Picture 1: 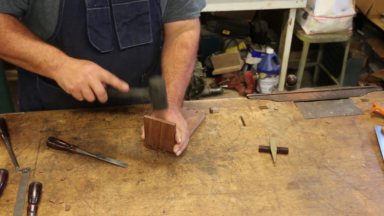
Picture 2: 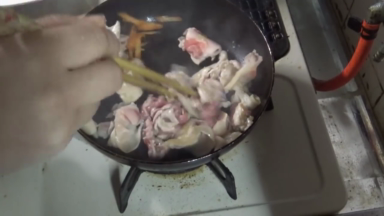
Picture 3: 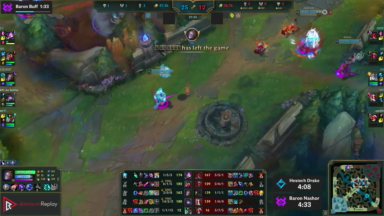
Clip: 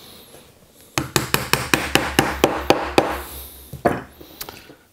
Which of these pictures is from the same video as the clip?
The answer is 1